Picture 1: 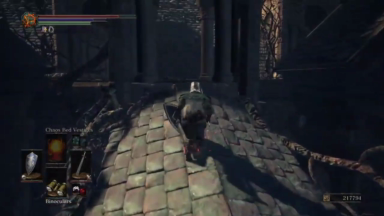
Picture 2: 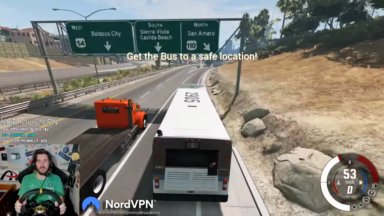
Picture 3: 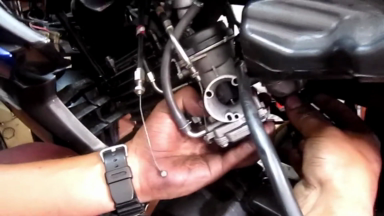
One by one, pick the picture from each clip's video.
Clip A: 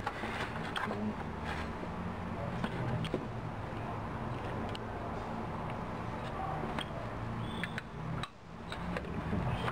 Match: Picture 3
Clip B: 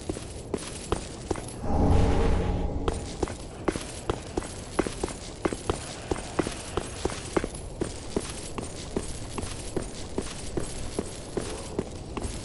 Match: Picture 1